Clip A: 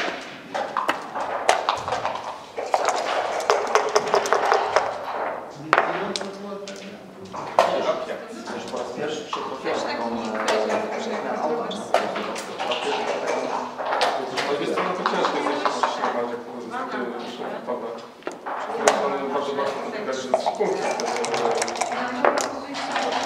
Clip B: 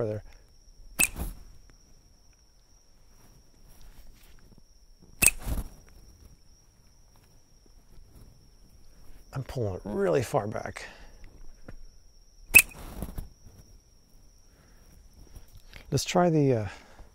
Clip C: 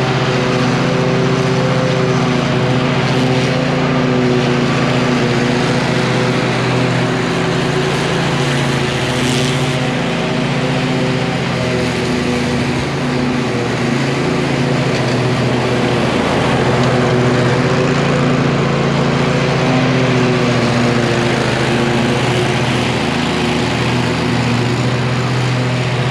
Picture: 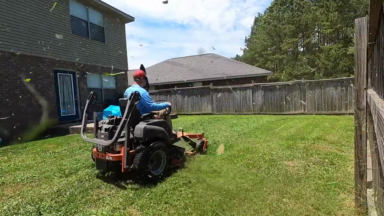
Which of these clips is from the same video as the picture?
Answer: C